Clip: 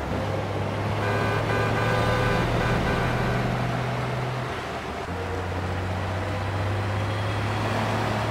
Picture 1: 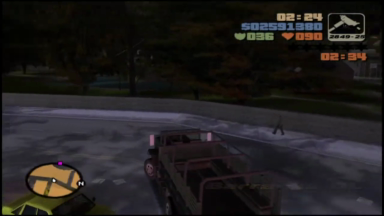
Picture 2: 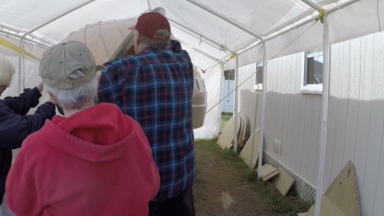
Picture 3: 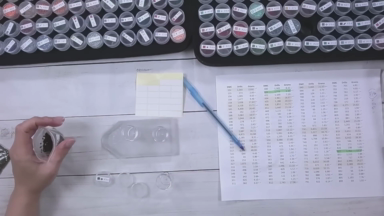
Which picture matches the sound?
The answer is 1